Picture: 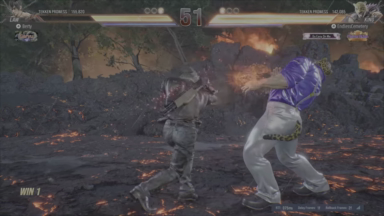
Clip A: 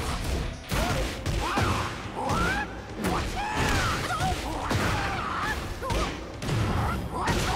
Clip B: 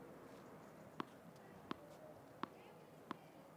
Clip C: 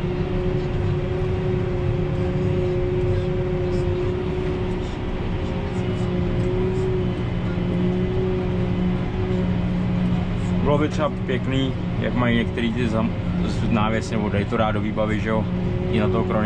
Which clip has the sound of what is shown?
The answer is A